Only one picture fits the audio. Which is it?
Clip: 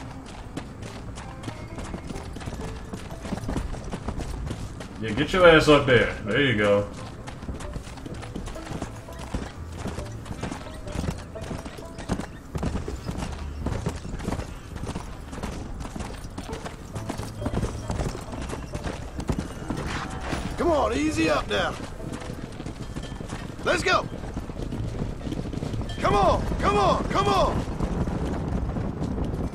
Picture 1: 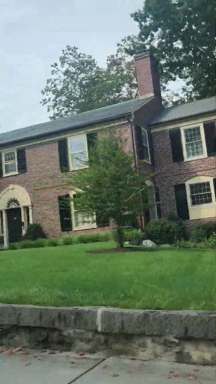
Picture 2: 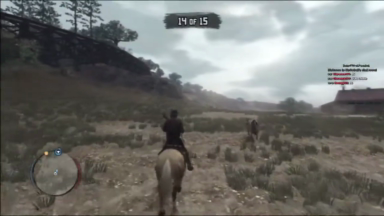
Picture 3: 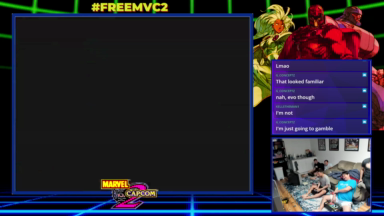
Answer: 2